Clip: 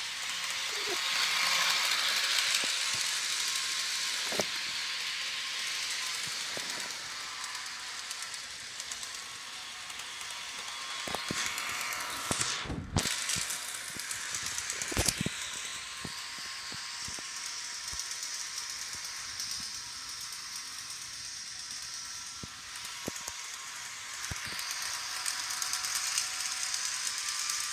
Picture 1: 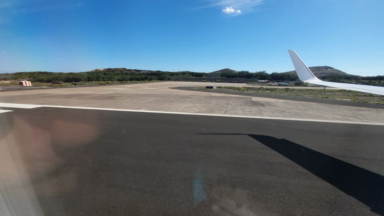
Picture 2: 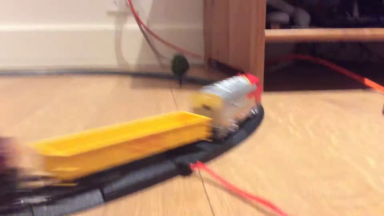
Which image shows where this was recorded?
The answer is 2